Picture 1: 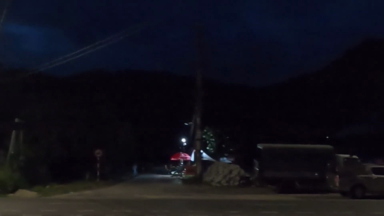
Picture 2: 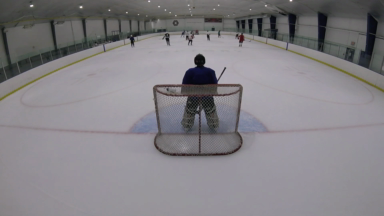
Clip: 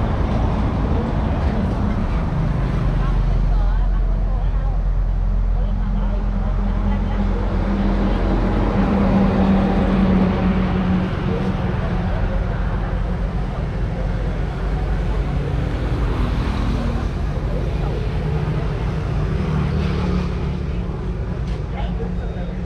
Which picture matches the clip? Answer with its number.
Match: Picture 1